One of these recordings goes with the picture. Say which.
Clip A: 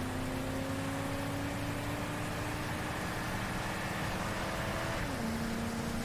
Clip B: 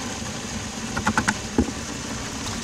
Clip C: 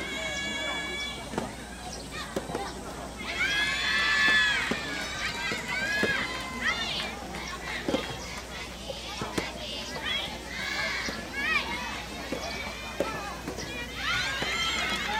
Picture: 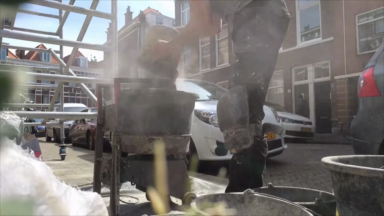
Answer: B